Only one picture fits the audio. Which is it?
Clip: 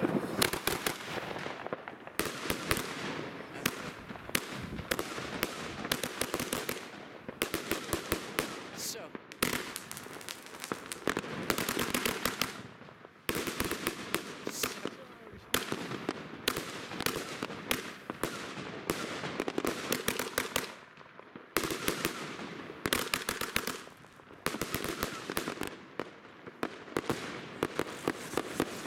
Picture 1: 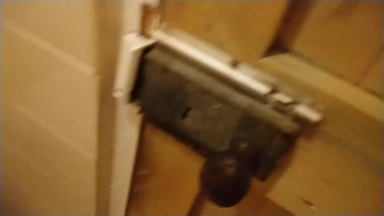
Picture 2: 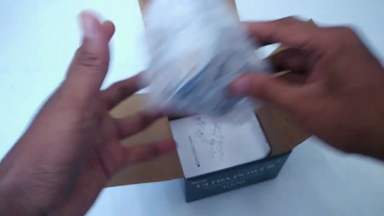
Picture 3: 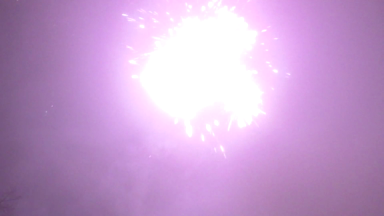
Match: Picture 3